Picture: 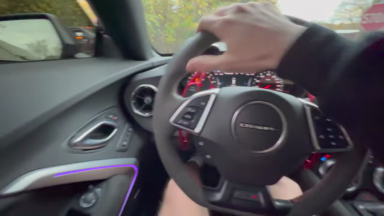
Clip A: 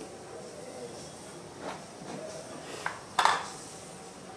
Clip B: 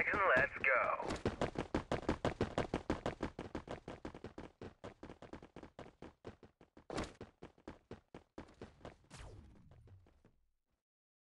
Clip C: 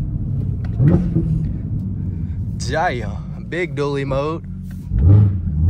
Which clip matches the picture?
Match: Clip C